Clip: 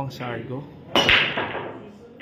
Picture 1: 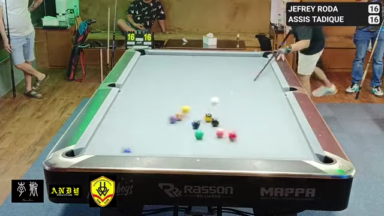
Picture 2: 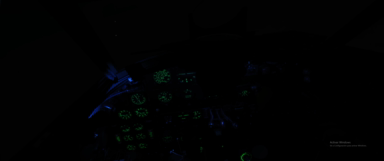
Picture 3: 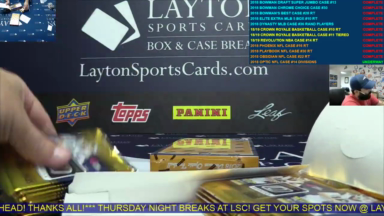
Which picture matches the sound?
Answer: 1